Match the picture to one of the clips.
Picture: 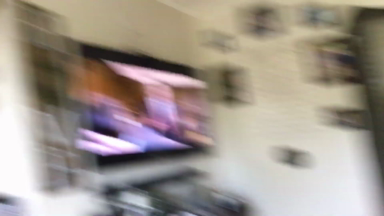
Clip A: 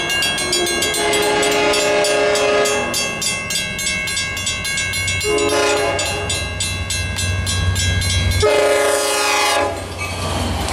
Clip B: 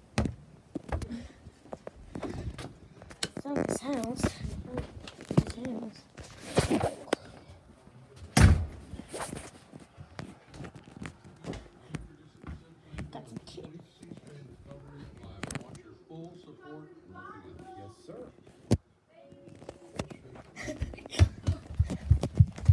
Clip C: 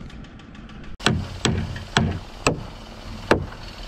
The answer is B